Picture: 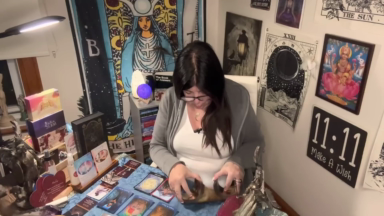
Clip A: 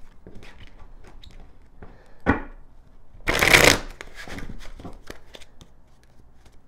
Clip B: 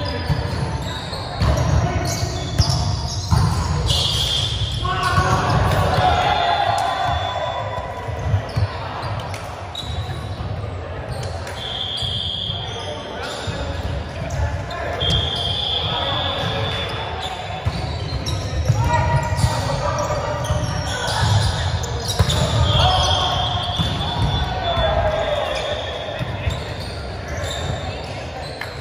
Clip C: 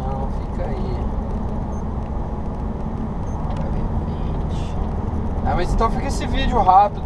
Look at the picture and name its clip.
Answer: A